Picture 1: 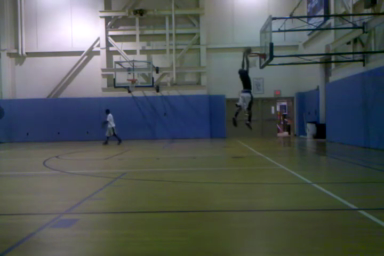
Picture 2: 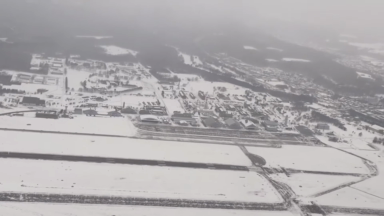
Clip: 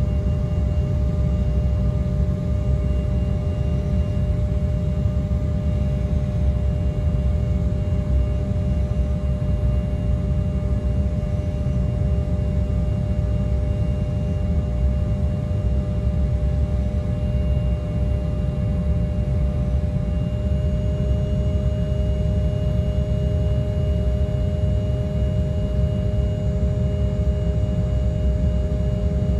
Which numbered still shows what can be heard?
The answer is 2